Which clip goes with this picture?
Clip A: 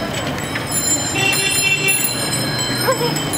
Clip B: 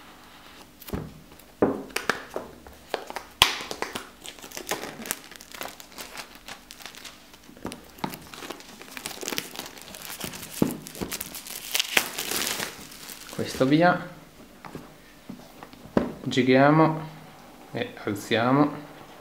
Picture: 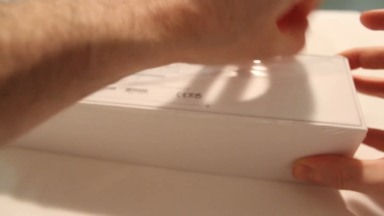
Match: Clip B